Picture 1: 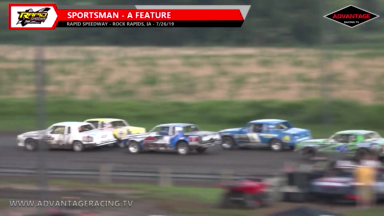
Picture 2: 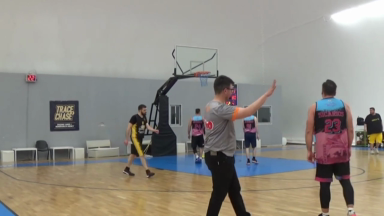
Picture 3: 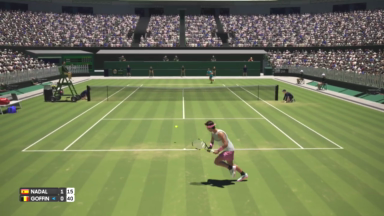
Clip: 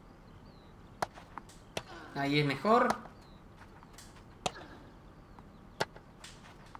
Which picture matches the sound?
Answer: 3